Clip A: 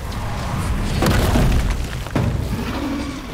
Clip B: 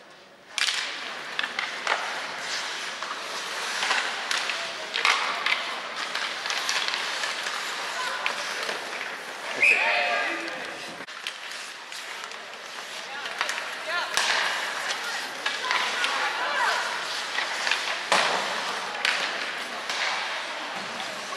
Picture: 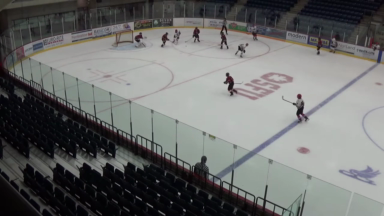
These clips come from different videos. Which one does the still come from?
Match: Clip B